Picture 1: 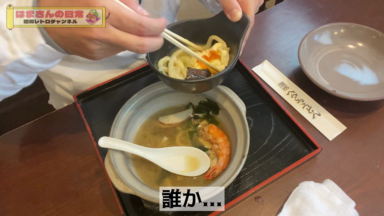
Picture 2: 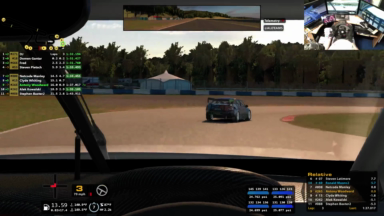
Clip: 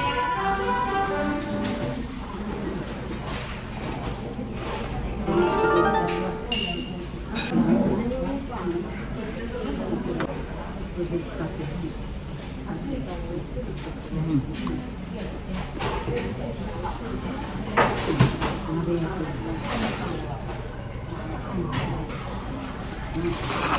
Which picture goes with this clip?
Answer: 1